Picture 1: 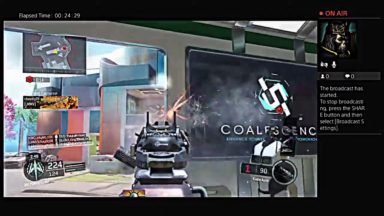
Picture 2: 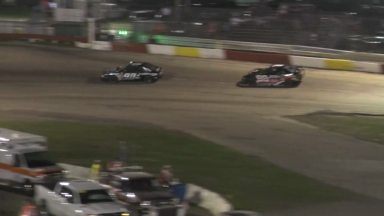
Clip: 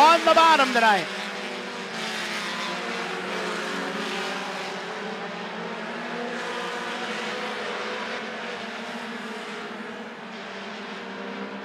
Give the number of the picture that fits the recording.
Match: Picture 2